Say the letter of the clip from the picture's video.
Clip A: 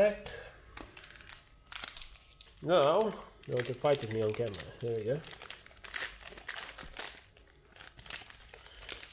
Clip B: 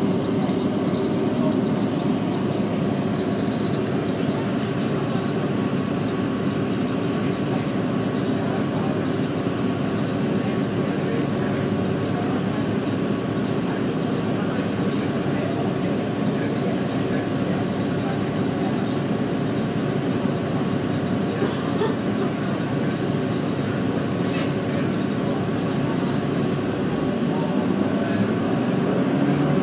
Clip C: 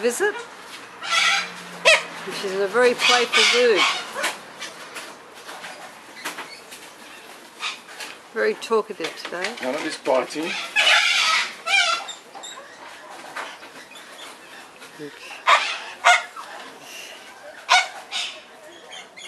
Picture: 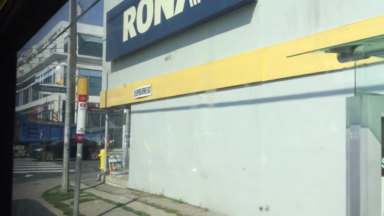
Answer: B